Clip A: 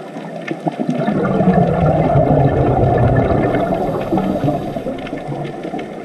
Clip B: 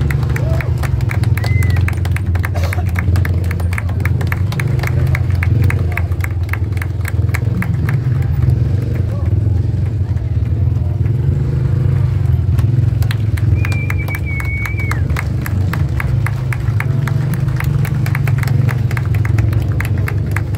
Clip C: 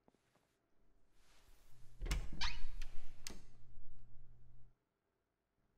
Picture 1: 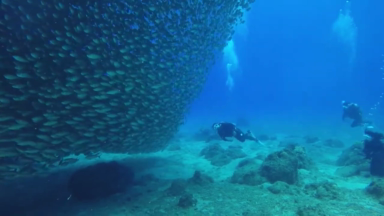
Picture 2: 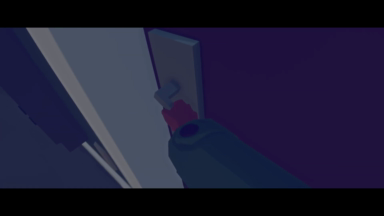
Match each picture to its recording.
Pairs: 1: A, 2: C